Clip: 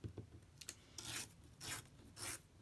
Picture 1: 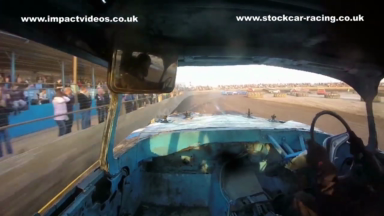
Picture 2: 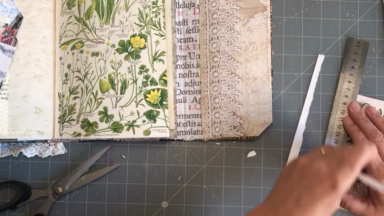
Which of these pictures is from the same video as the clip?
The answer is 2